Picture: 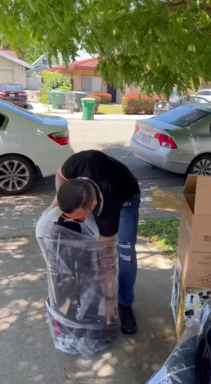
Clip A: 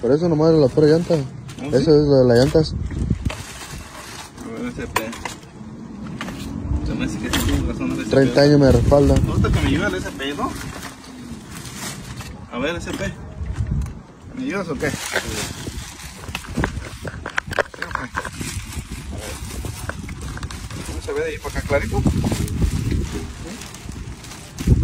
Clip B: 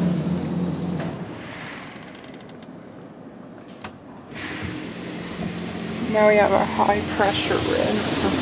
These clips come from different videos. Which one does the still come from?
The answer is A